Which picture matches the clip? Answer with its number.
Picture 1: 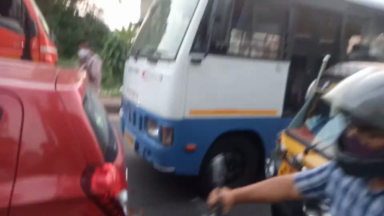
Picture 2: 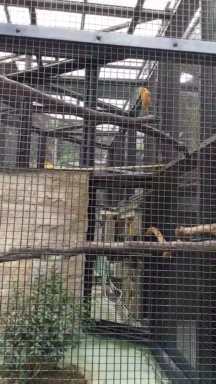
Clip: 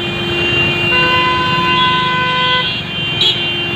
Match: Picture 1